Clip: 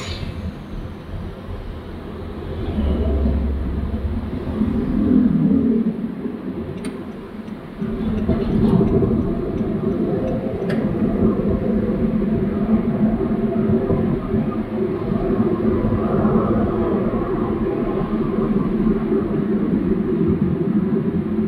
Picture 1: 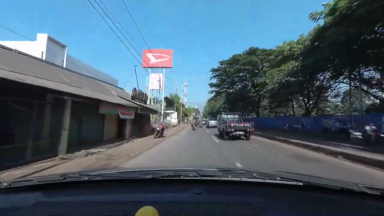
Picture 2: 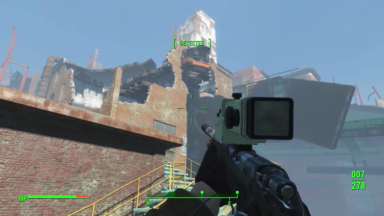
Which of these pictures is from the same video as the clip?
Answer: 1